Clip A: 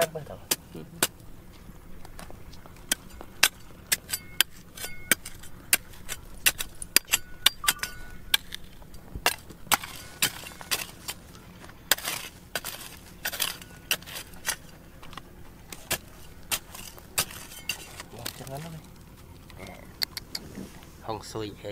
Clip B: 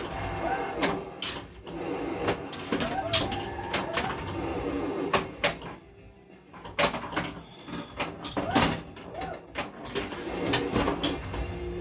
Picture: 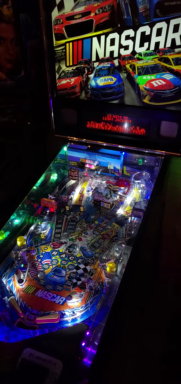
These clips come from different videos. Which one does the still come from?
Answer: B